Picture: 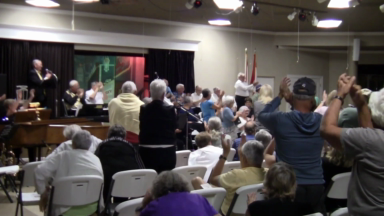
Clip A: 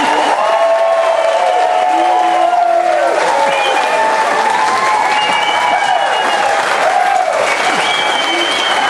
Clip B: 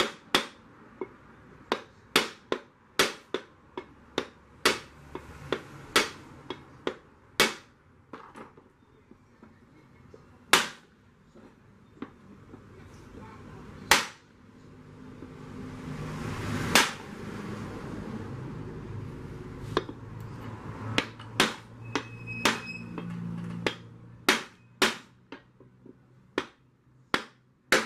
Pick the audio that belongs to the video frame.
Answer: A